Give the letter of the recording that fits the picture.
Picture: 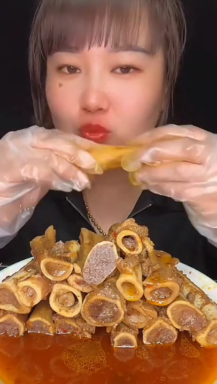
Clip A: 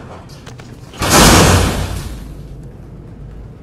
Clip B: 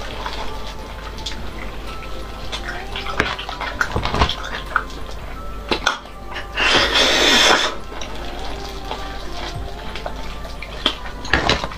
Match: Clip B